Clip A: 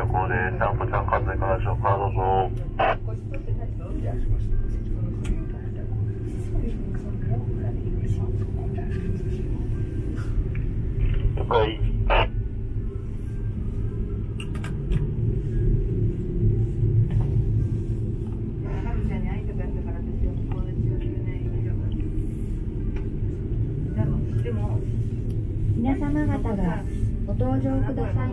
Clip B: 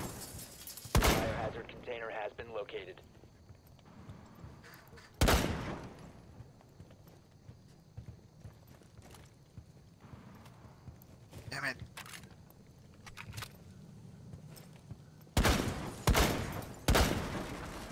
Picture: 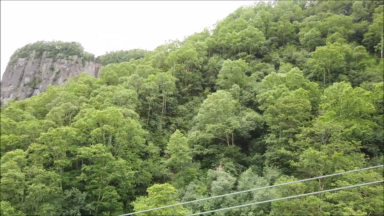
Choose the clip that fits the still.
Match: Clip A